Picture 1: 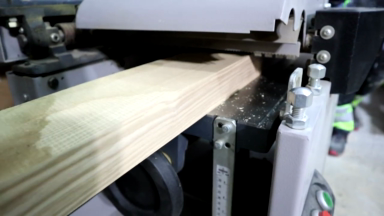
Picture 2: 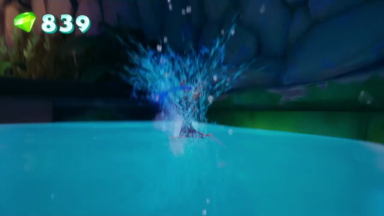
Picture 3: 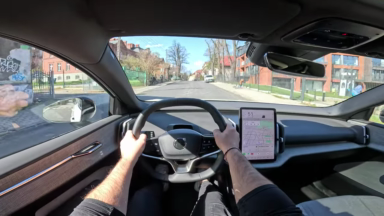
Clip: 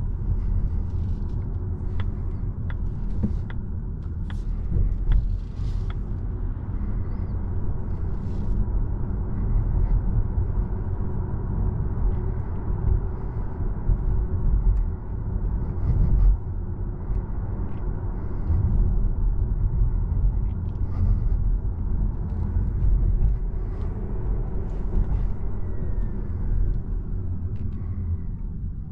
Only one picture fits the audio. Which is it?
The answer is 3